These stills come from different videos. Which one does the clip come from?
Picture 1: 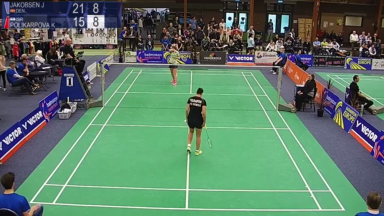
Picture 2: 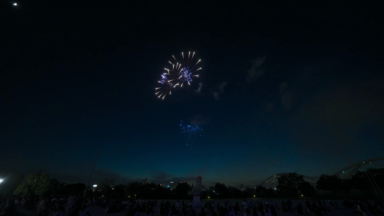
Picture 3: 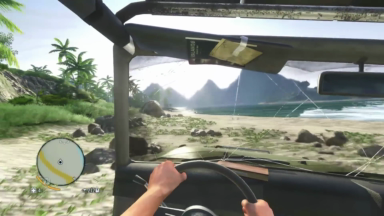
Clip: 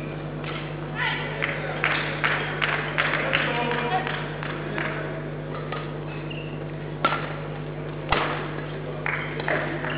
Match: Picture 1